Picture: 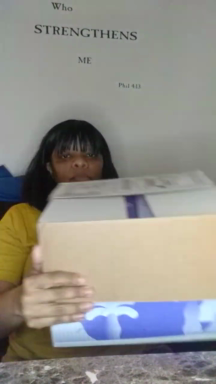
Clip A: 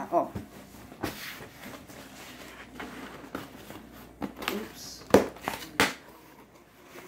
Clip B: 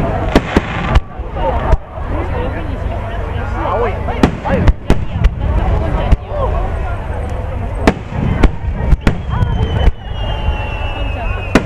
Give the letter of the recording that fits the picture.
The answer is A